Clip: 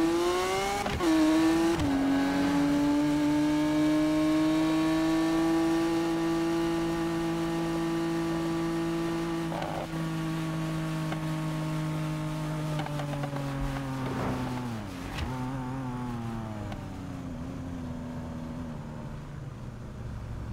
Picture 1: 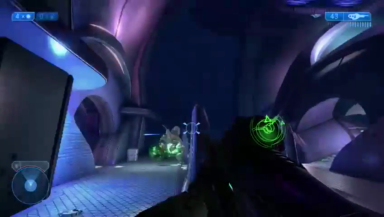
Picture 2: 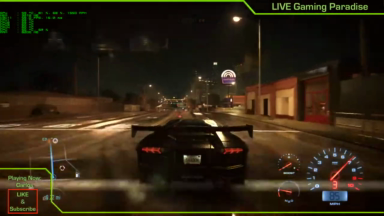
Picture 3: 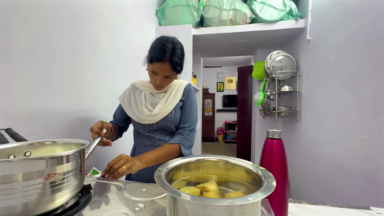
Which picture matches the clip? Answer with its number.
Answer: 2